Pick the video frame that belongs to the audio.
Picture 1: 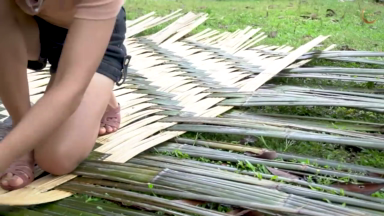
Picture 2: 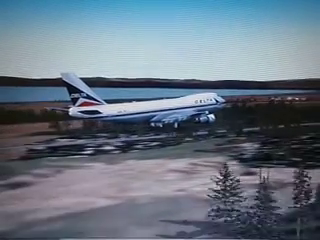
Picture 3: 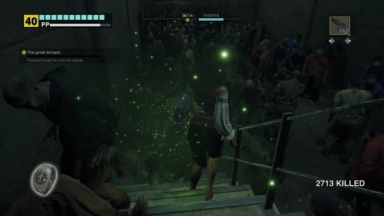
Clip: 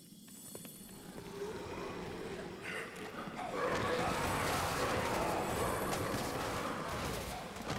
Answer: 3